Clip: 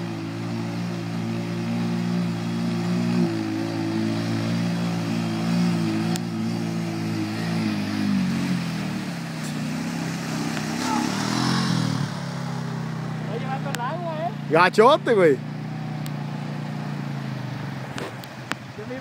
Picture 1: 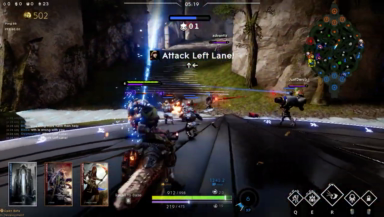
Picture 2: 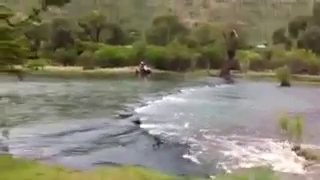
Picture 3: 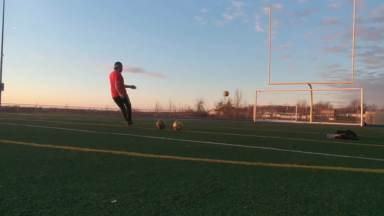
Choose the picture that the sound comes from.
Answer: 2